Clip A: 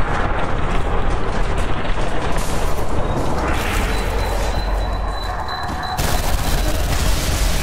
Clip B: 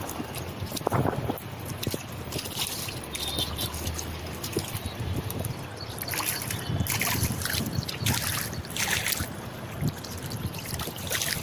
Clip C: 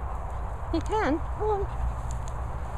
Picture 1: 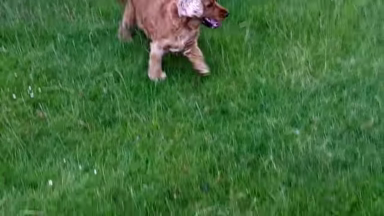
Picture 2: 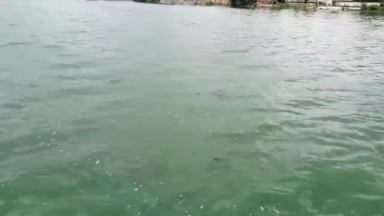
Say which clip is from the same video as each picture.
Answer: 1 C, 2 B